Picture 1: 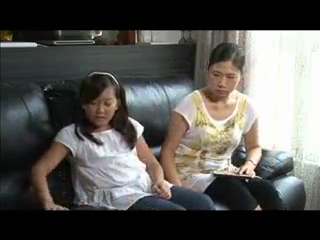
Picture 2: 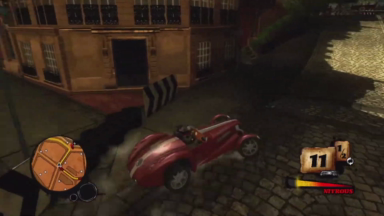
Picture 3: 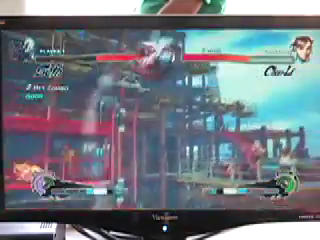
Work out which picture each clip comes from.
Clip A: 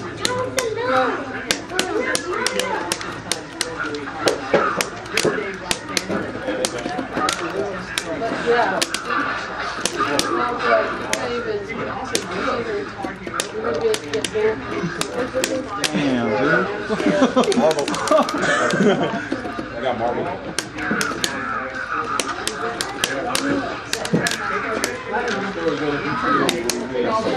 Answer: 3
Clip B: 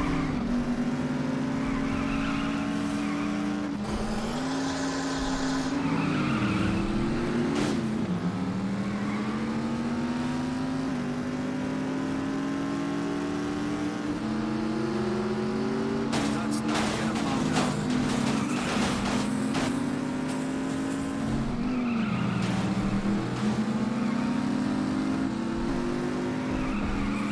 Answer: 2